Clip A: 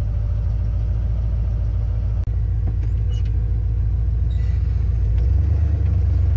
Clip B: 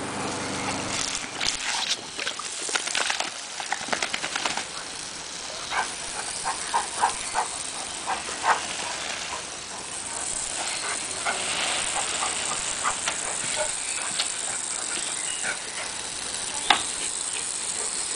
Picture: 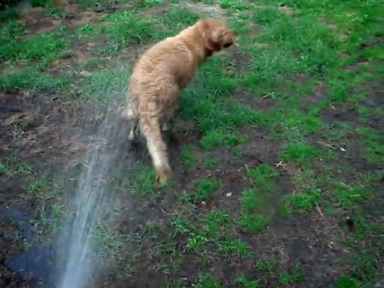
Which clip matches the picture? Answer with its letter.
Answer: B